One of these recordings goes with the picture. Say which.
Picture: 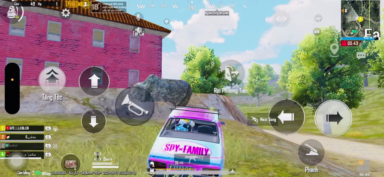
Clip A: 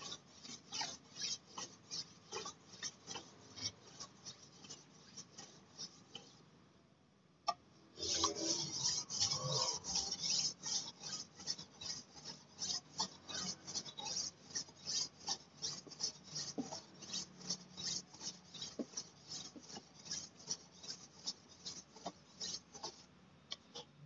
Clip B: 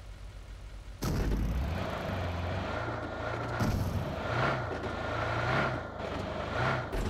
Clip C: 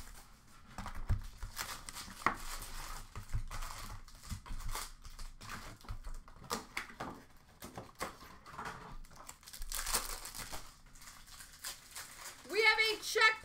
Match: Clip B